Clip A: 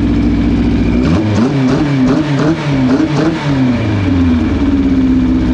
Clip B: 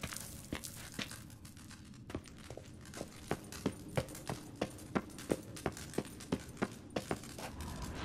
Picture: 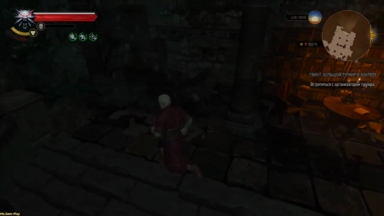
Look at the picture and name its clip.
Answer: B